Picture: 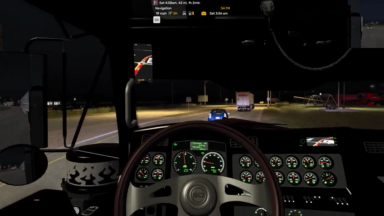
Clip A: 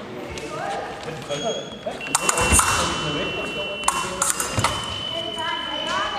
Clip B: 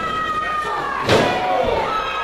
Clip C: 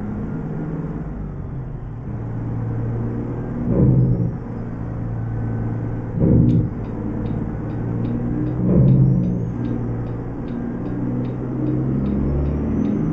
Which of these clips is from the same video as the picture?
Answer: C